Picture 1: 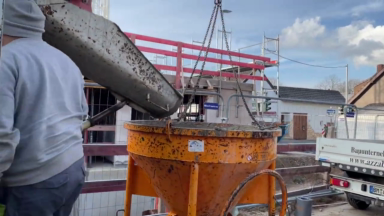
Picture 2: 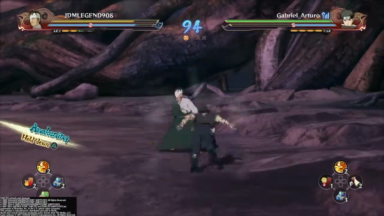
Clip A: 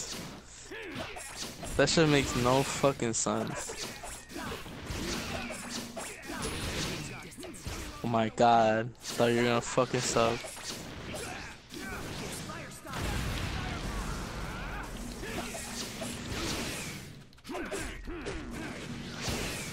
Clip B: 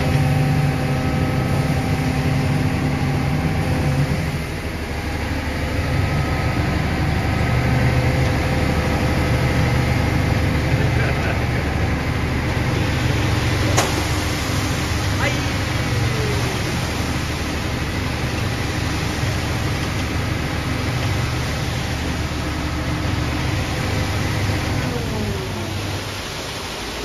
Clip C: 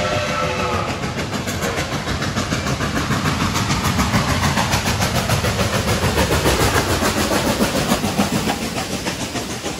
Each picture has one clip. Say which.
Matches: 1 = B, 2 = A